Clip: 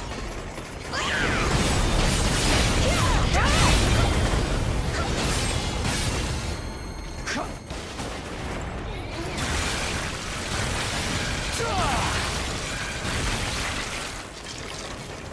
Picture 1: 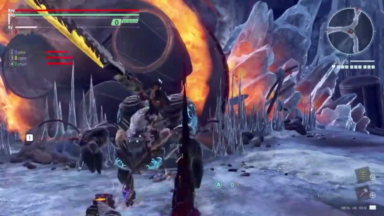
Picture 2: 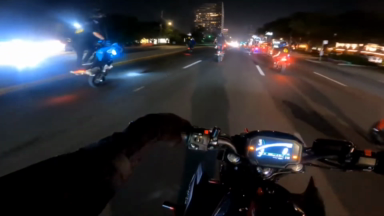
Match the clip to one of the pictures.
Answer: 1